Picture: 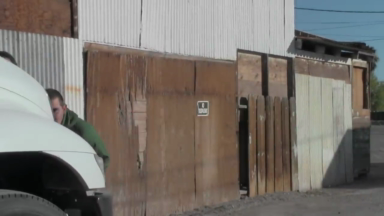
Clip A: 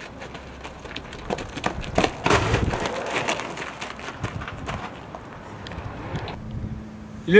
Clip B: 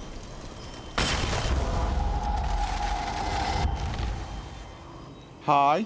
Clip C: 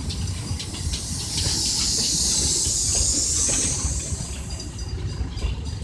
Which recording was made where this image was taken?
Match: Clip A